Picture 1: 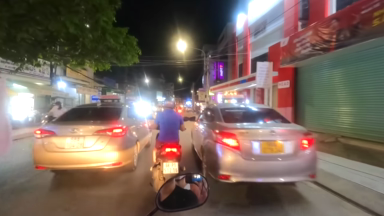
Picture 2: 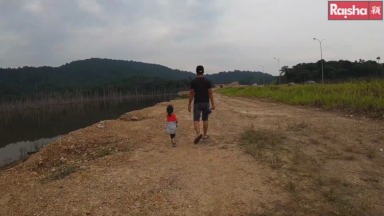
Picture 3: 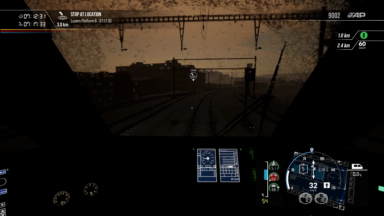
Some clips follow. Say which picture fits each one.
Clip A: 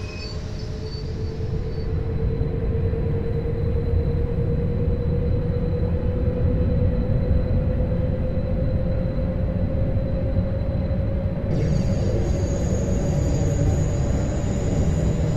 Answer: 3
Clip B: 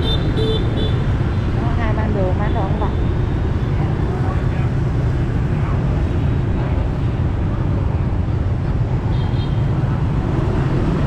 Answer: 1